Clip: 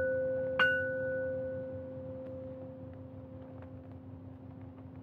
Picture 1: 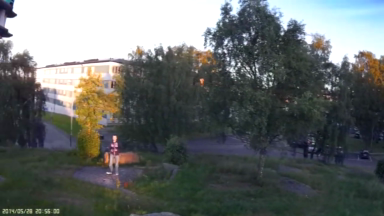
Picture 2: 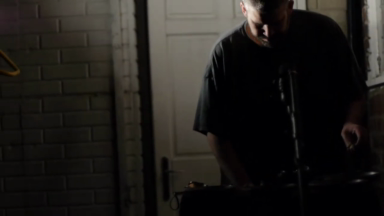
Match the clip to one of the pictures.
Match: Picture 2